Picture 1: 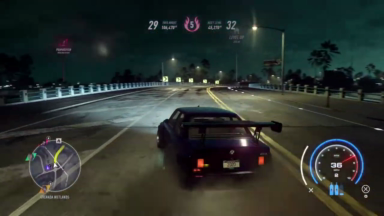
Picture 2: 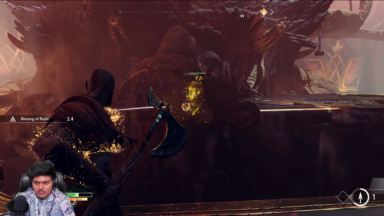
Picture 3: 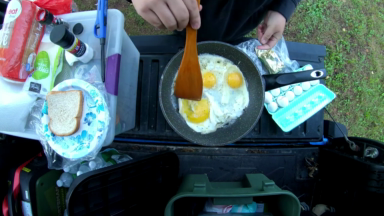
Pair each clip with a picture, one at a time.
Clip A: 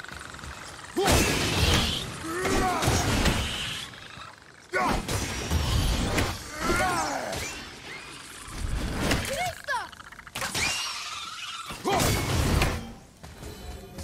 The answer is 2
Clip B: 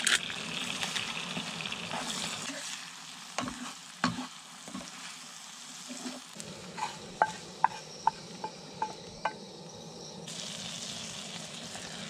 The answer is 3